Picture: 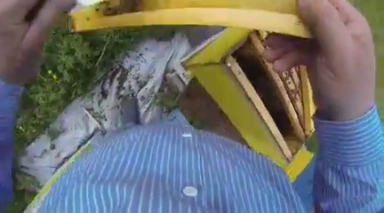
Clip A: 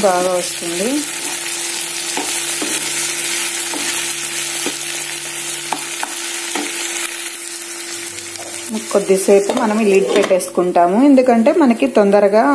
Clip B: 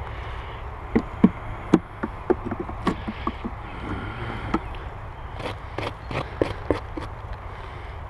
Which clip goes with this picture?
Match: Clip B